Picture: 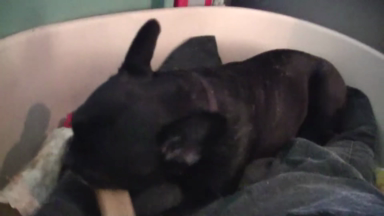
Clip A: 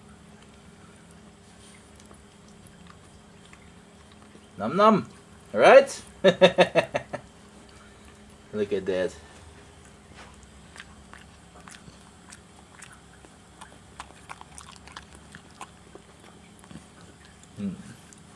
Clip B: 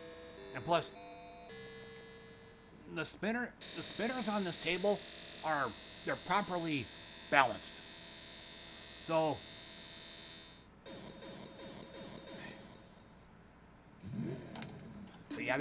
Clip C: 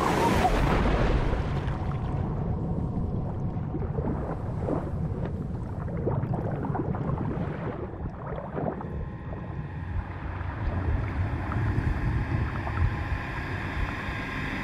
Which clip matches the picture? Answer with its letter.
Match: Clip A